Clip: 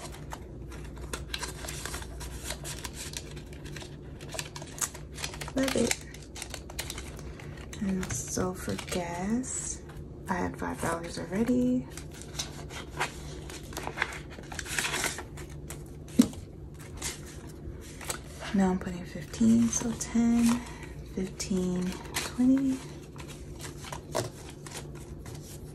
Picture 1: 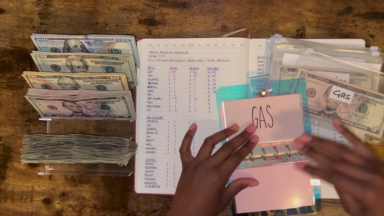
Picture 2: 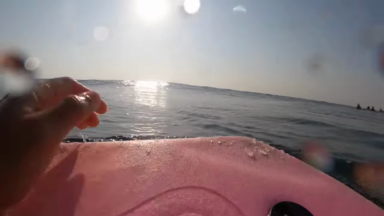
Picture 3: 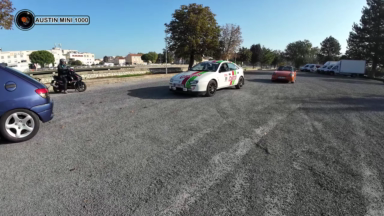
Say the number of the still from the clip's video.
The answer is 1